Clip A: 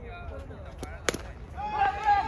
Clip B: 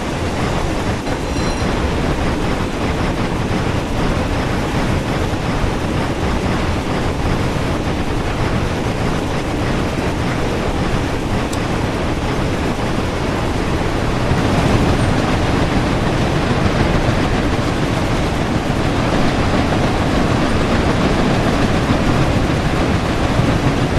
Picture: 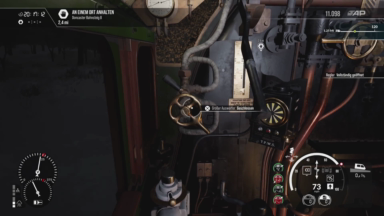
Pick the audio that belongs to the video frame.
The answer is B